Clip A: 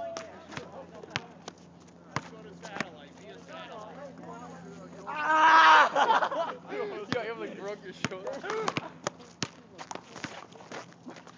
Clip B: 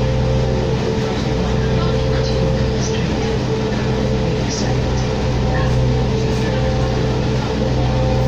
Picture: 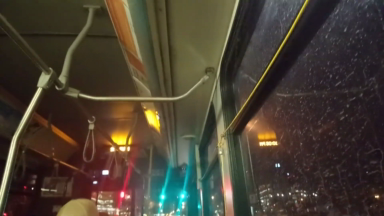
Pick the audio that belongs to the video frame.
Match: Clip B